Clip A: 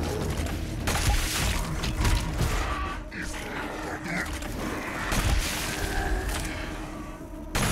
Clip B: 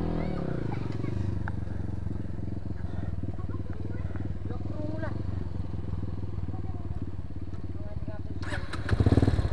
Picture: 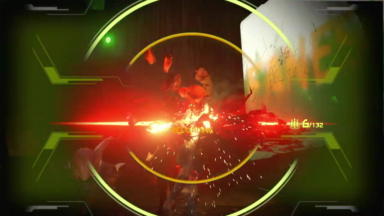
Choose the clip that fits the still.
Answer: A